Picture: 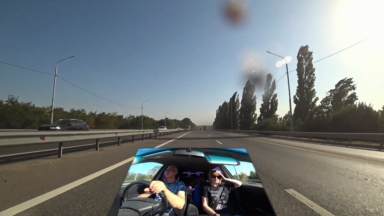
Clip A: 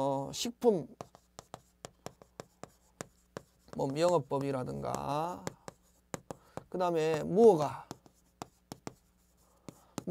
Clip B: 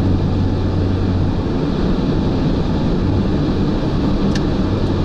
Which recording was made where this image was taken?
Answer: B